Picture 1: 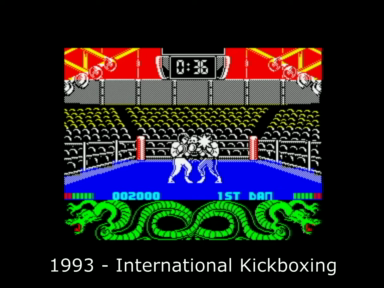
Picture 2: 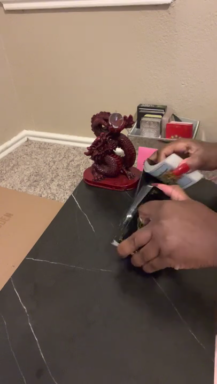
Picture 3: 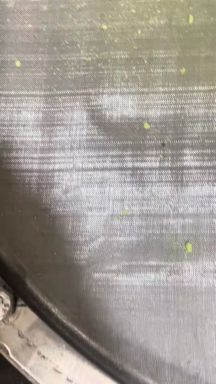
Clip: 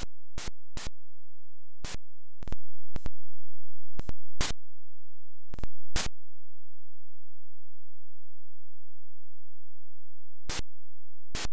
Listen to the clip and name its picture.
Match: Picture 1